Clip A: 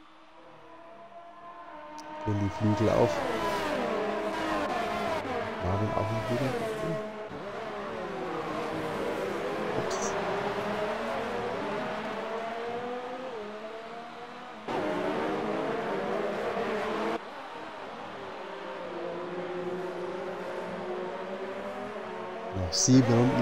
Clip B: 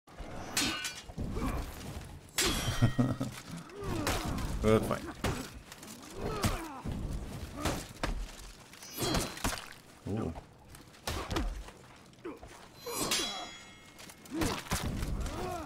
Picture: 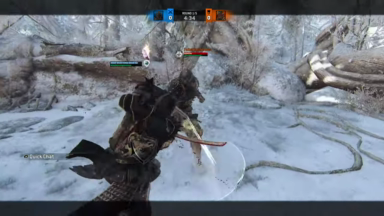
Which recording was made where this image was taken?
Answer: B